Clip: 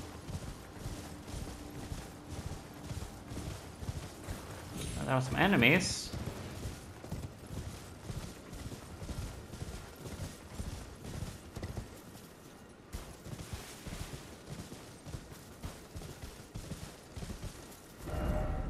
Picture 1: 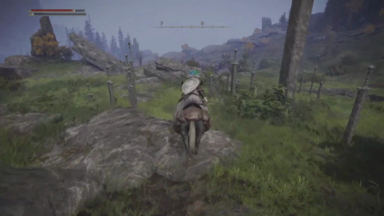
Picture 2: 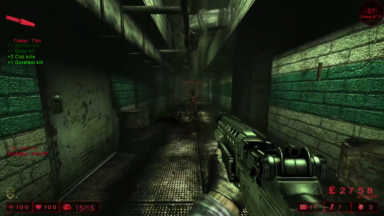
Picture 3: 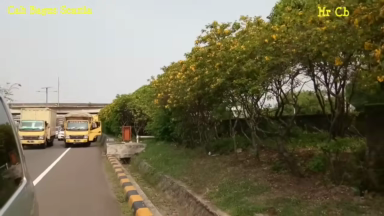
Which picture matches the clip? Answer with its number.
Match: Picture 1